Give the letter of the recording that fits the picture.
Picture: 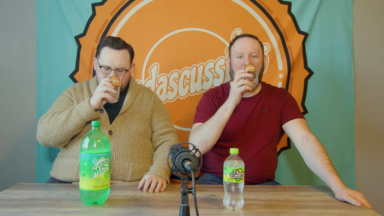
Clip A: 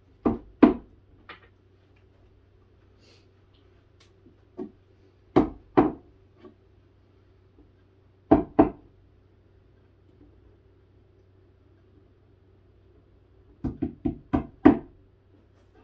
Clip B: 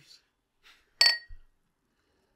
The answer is B